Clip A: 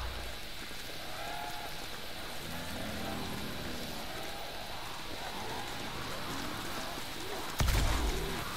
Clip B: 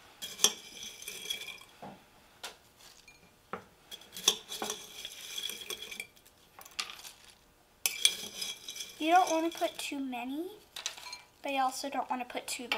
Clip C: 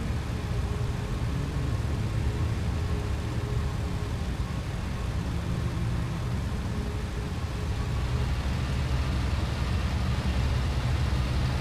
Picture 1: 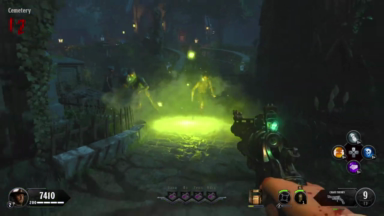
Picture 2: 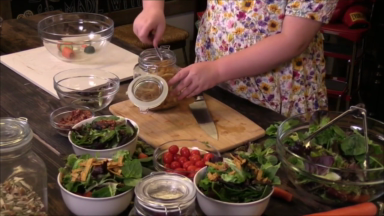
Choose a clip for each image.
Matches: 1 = A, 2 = B